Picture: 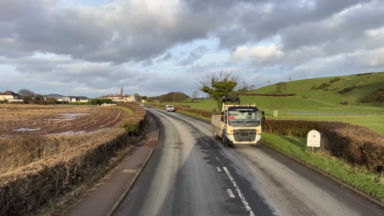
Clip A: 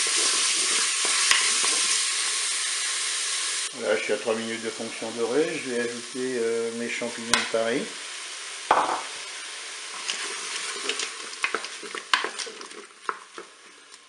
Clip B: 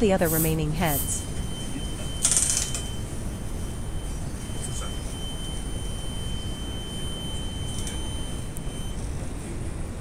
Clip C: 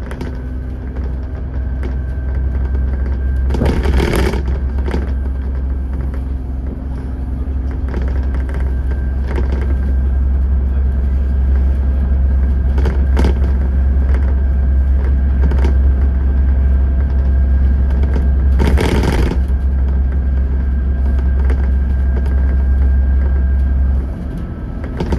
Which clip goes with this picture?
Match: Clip C